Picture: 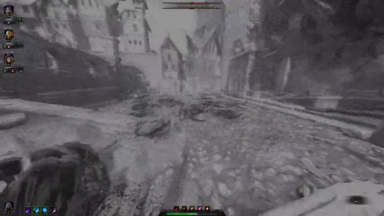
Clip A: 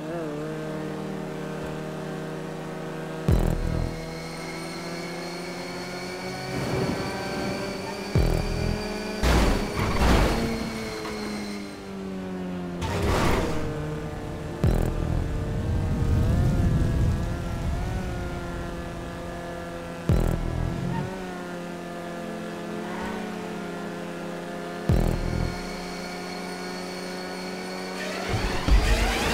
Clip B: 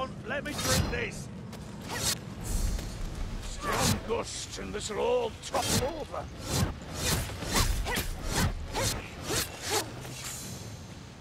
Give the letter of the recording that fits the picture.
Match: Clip B